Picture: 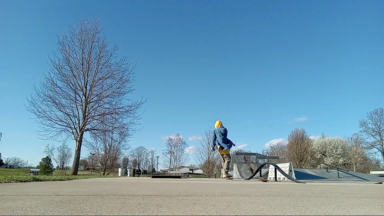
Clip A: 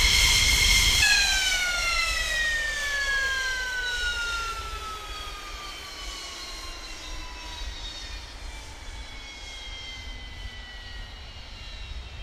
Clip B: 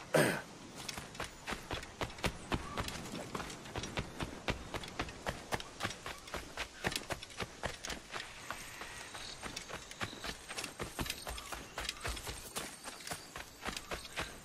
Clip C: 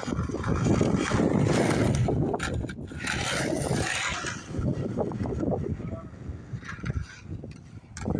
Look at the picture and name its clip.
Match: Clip C